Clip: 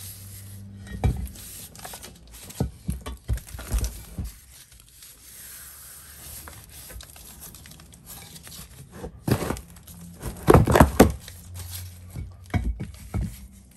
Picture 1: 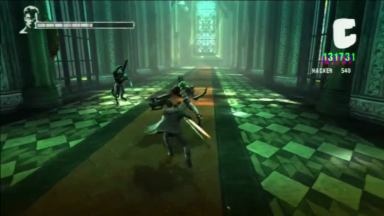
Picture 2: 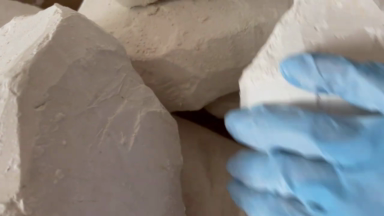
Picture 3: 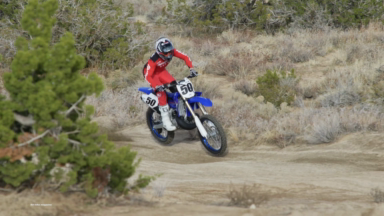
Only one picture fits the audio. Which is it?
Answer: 2